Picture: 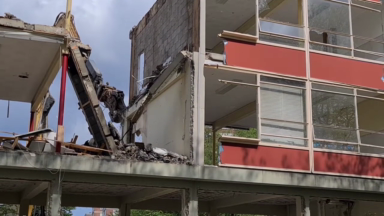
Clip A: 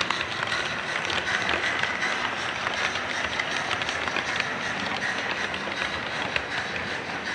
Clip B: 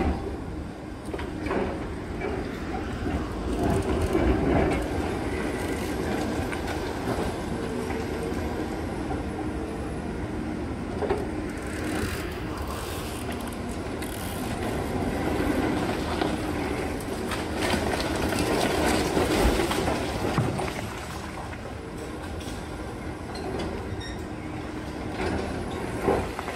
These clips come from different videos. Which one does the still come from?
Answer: B